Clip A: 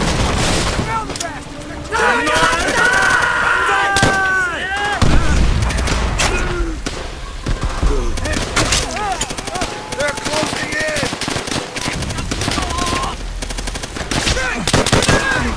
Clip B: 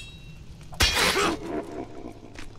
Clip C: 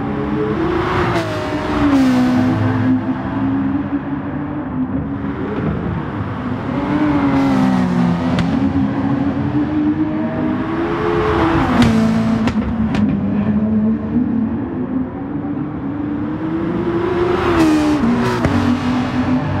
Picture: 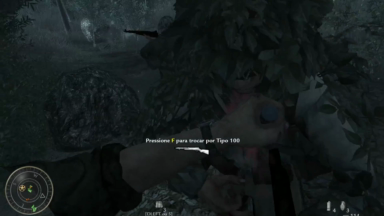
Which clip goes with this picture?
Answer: A